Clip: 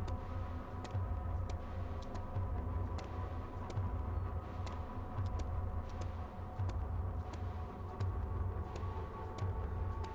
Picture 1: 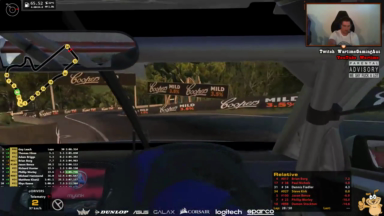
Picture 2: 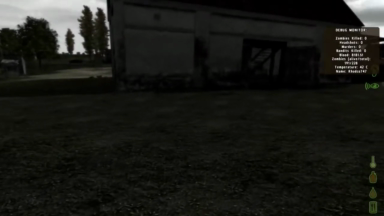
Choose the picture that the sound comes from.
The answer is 2